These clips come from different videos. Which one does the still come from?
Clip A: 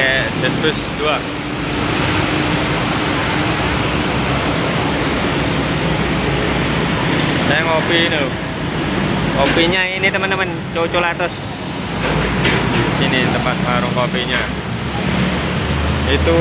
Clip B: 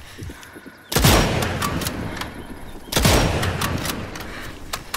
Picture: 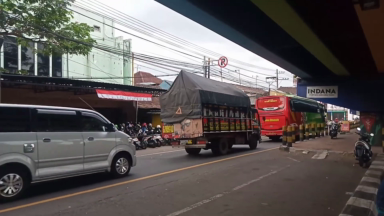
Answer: A